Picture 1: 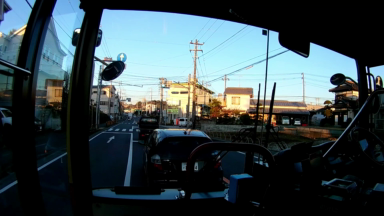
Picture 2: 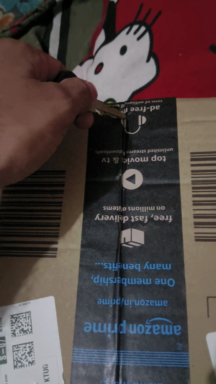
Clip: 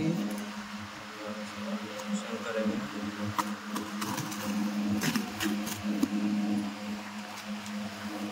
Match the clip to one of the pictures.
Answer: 2